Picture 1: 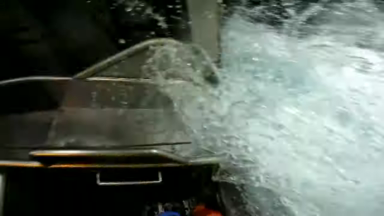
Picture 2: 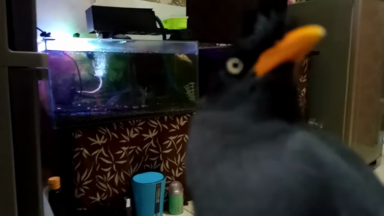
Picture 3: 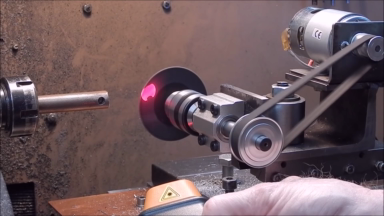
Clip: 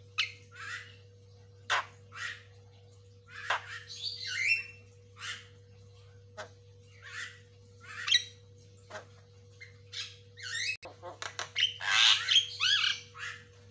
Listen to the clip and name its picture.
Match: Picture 2